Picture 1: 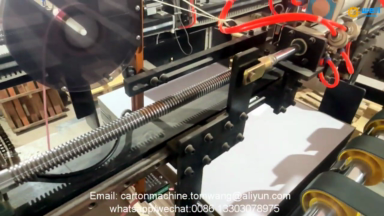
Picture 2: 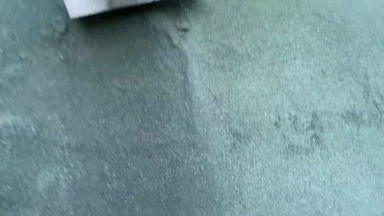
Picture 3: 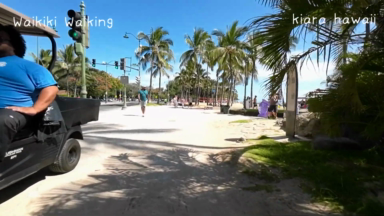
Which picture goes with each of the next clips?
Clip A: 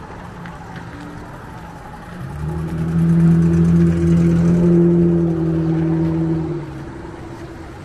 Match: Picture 3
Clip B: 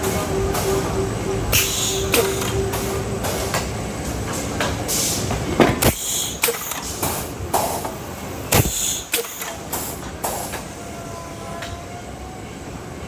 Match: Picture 1